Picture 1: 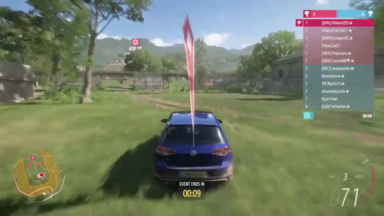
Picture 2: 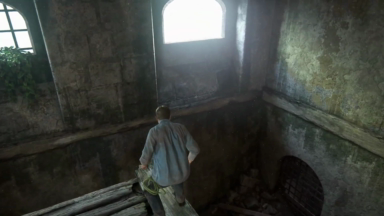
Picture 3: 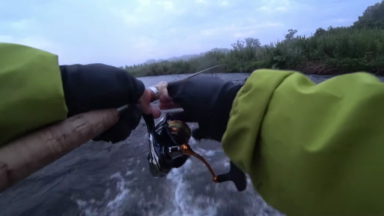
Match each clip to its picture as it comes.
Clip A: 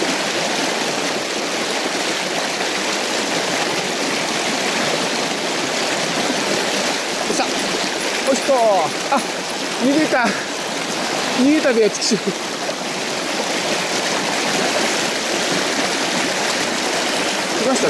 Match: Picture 3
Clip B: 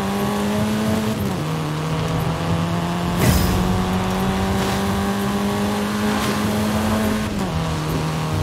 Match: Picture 1